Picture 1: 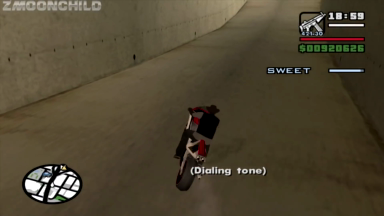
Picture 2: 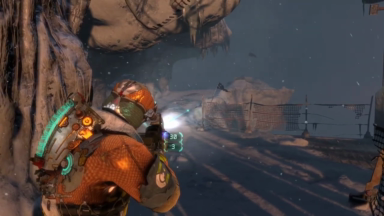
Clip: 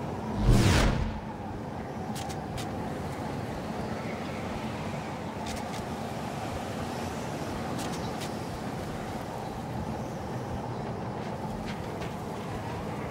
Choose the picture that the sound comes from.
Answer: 2